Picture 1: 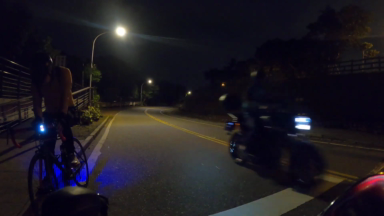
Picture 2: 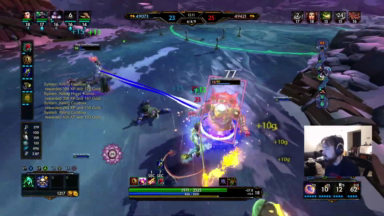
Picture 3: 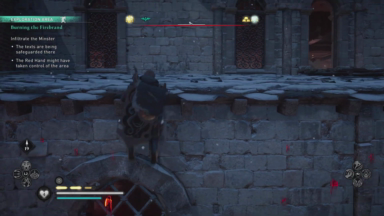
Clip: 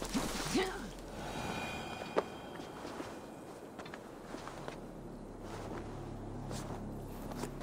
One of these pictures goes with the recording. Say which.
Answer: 3